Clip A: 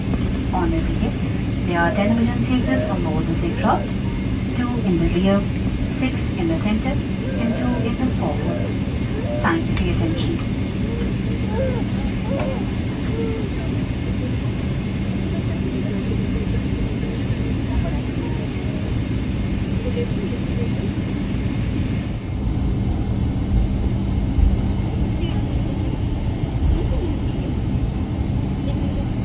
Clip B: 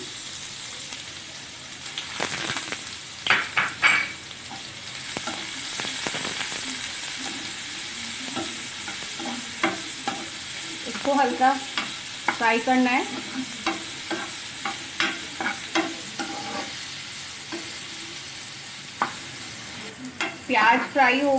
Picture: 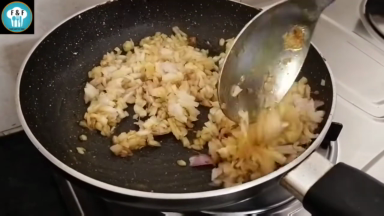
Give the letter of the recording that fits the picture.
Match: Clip B